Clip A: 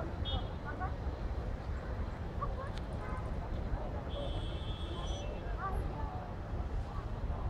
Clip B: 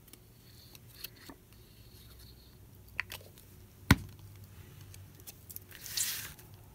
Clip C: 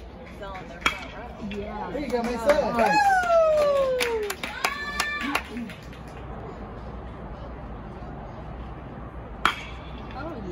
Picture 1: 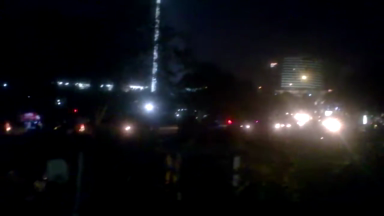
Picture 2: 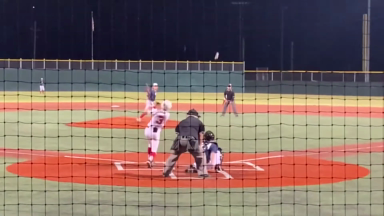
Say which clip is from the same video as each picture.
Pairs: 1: A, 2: C